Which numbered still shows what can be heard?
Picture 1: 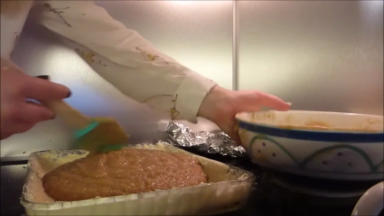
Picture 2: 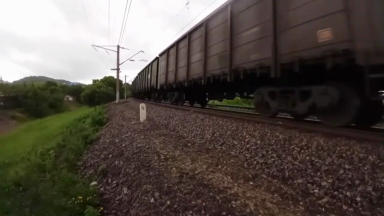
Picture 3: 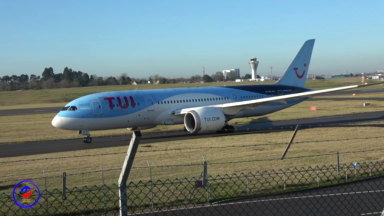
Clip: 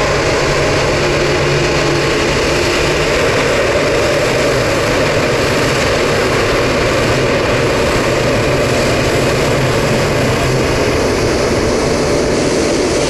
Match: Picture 3